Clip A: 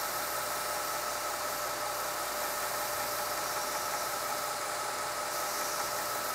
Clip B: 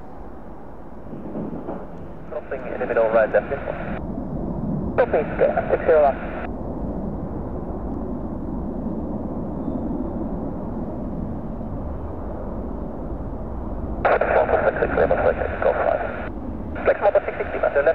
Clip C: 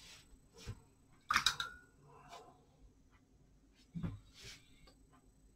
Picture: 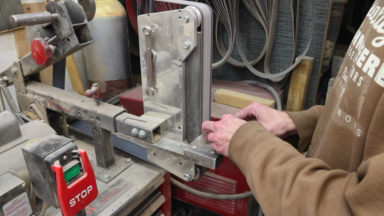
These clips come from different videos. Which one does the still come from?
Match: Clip A